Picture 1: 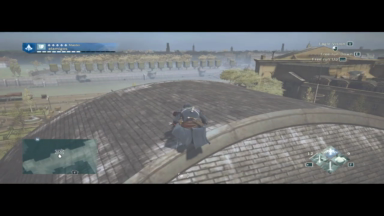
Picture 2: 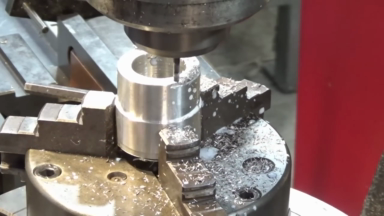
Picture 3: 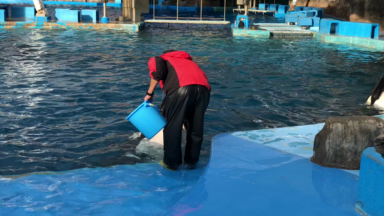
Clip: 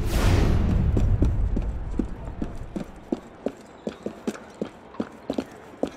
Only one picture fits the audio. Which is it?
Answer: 1